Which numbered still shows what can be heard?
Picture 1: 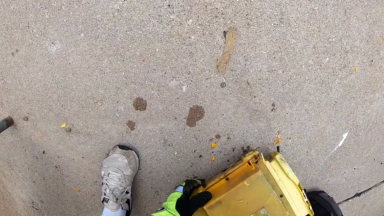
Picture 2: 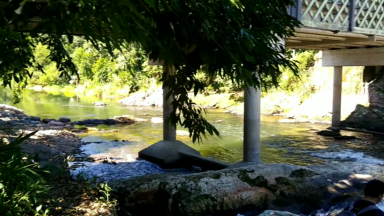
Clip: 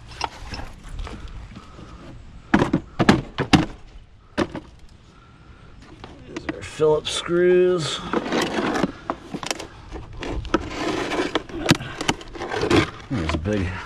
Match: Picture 1